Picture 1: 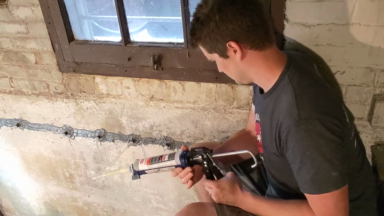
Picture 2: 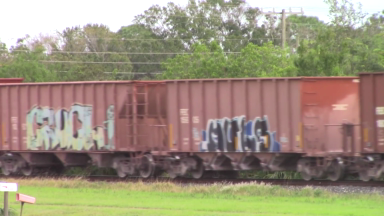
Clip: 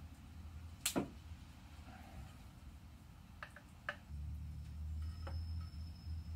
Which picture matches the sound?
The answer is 1